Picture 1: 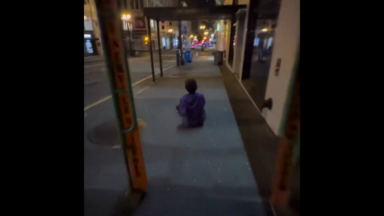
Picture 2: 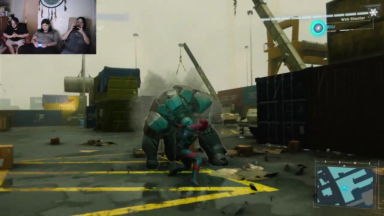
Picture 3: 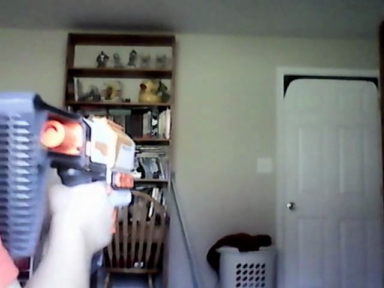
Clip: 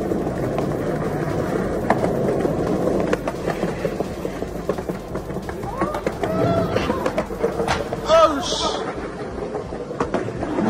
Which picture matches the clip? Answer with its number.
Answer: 1